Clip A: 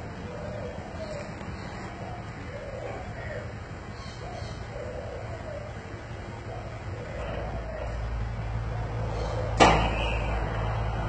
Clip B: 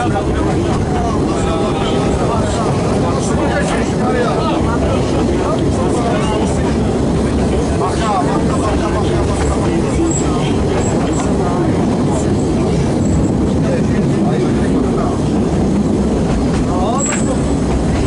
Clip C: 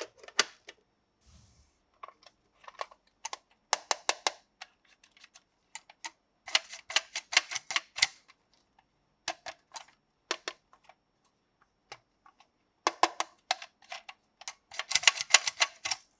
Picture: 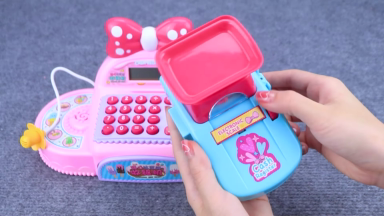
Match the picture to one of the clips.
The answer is C